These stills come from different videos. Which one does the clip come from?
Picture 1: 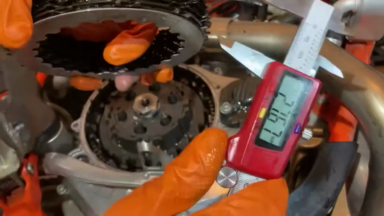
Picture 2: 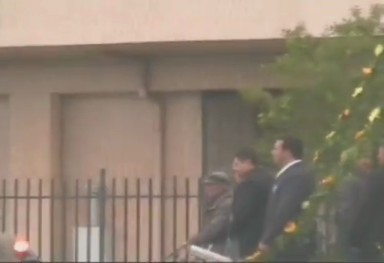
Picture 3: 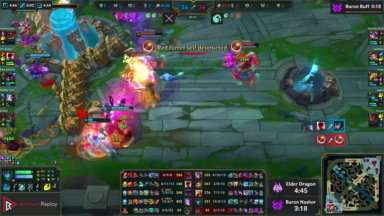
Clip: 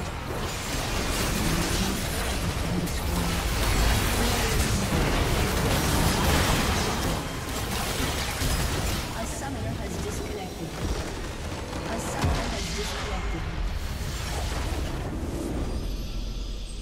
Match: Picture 3